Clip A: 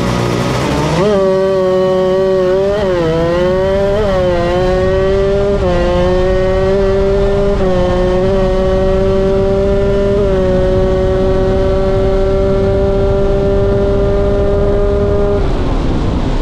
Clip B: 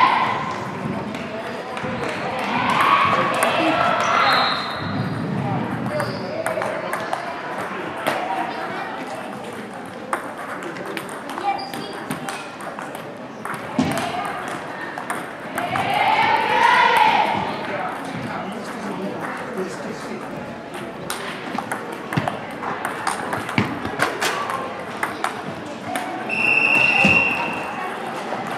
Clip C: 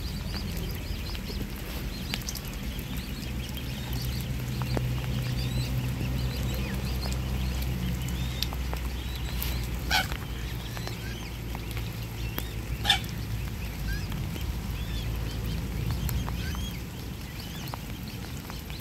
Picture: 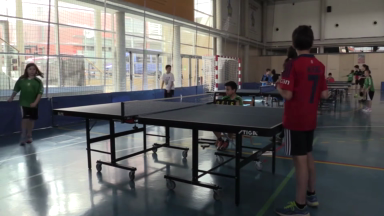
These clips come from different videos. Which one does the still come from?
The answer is B